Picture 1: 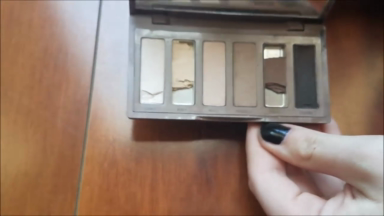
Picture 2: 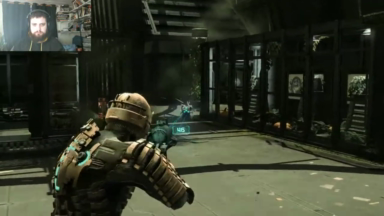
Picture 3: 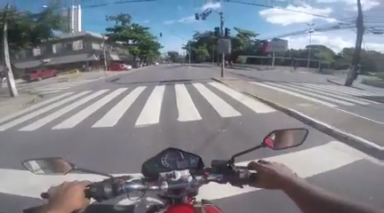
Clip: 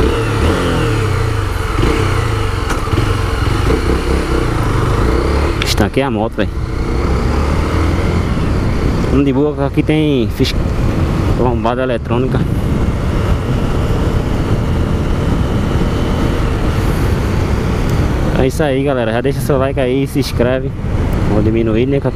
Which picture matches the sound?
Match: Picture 3